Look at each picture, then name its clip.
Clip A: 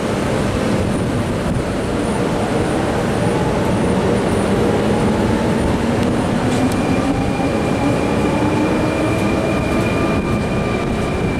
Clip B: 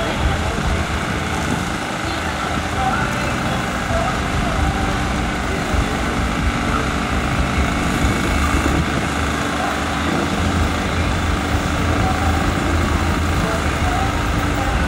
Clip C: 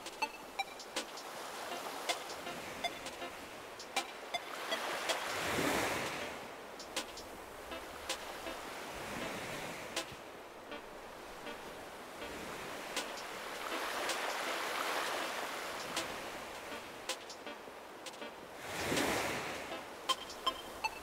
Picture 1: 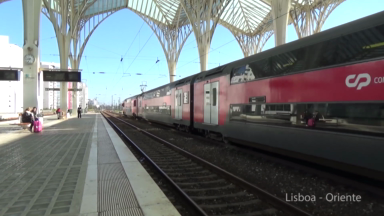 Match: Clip A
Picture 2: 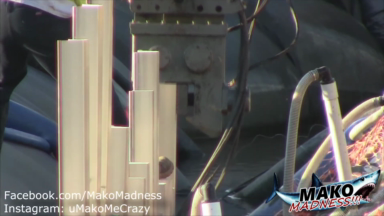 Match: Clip B